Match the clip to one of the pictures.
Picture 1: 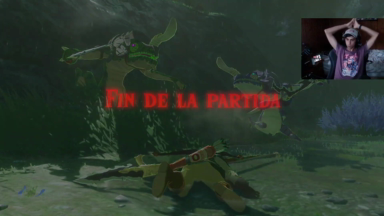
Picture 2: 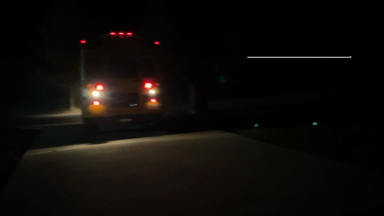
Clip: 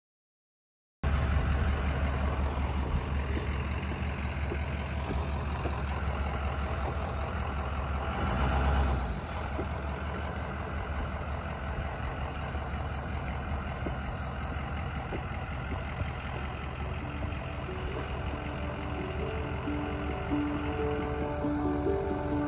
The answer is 2